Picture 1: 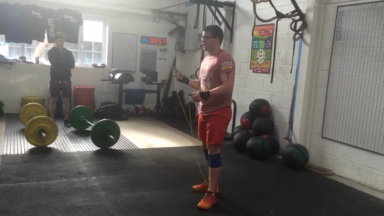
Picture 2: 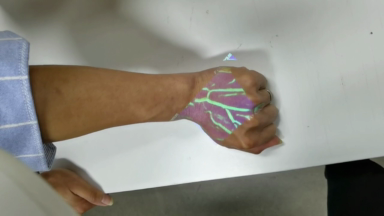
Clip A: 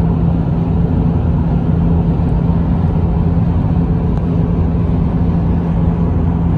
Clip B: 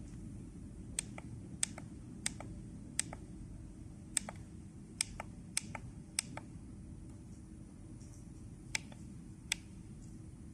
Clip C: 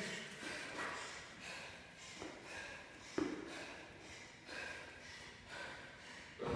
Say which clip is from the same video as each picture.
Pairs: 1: C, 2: B